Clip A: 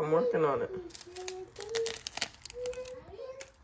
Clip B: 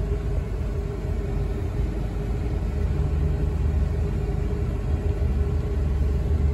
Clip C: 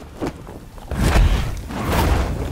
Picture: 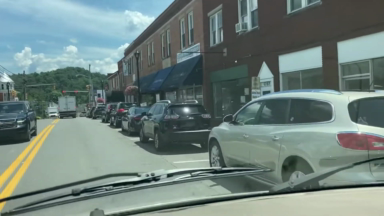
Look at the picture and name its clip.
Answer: B